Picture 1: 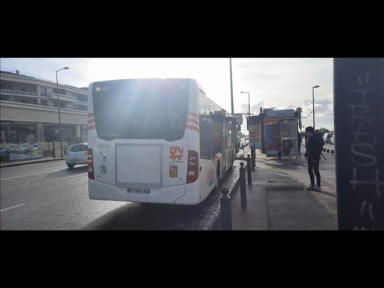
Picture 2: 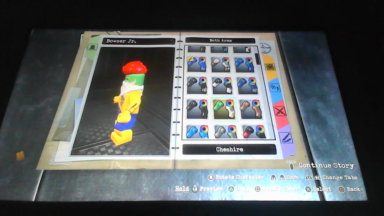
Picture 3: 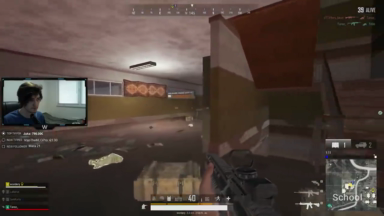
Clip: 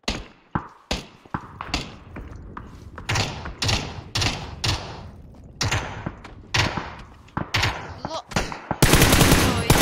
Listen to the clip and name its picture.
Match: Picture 3